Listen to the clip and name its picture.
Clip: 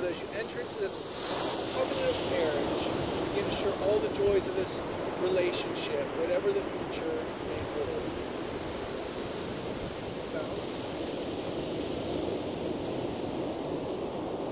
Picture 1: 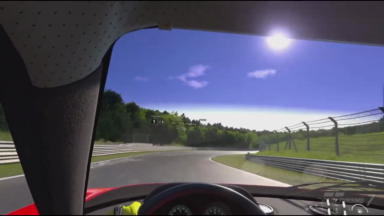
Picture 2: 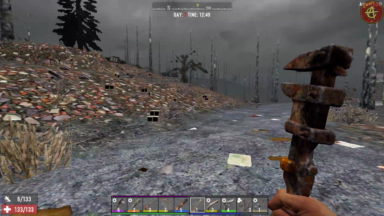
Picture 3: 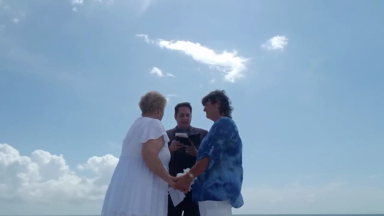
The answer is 3